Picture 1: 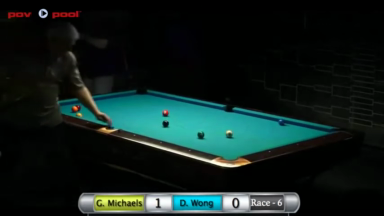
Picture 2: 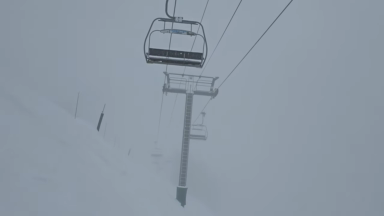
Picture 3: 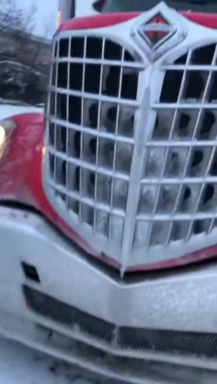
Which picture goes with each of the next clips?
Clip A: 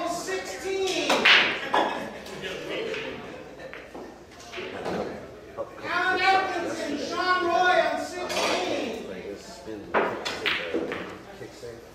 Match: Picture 1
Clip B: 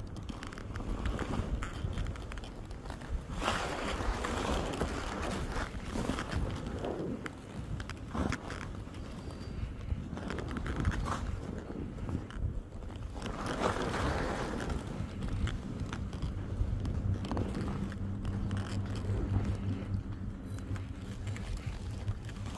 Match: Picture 2